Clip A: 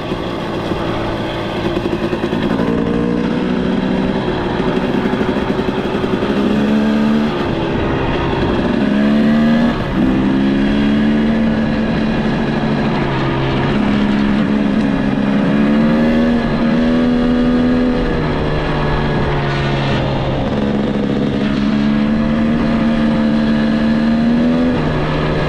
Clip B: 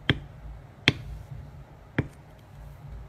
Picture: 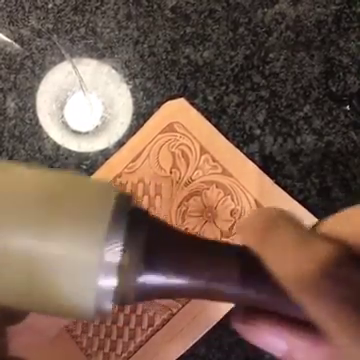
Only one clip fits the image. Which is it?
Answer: B